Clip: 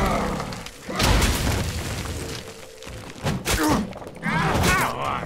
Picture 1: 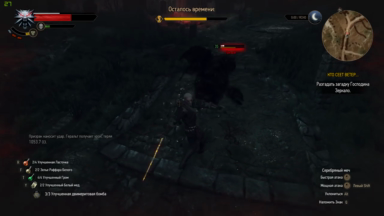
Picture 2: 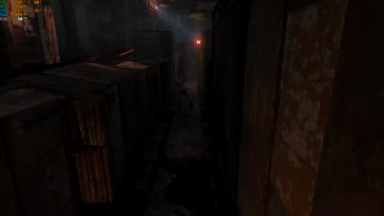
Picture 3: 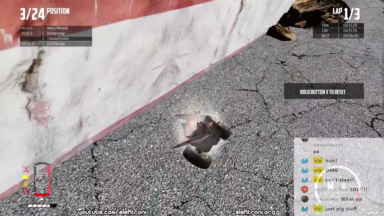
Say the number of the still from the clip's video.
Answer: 1